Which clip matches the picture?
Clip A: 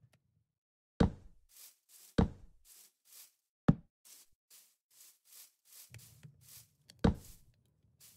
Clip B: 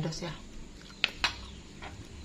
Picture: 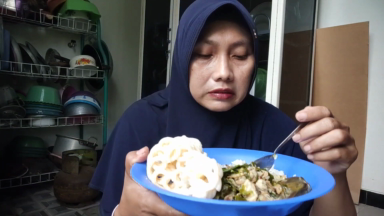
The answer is B